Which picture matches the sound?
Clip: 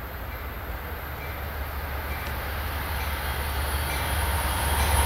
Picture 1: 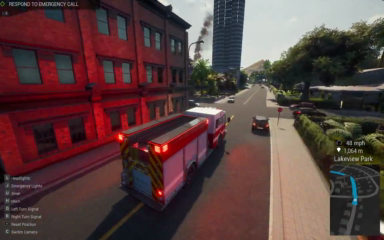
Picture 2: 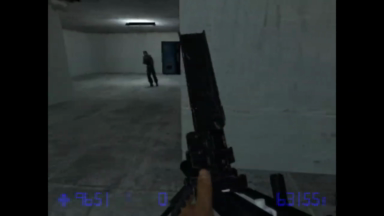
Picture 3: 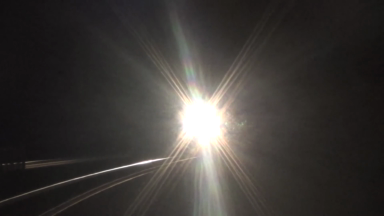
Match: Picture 3